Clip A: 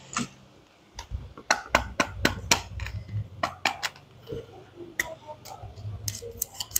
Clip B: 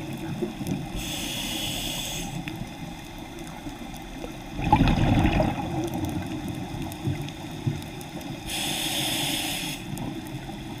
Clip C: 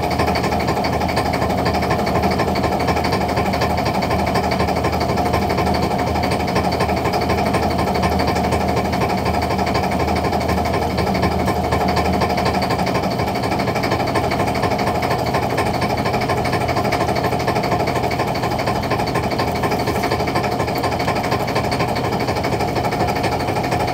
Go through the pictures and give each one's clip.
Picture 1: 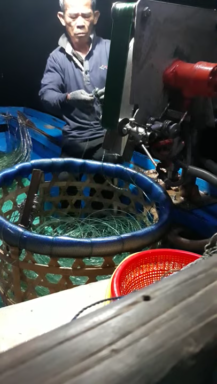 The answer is C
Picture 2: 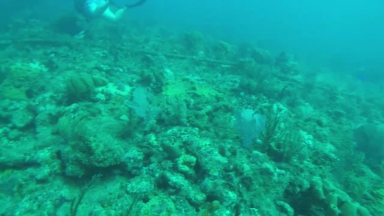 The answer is B